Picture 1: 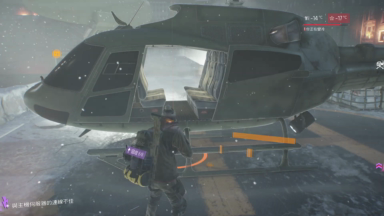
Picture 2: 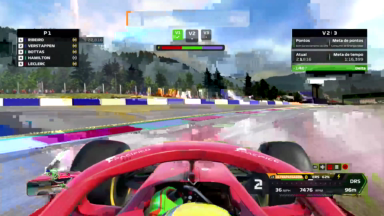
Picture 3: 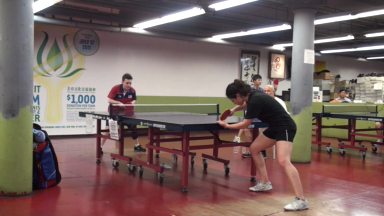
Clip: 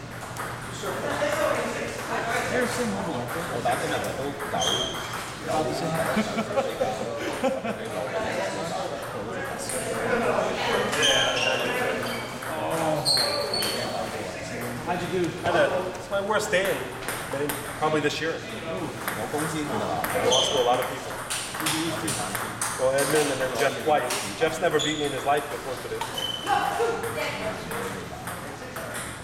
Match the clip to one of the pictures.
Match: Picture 3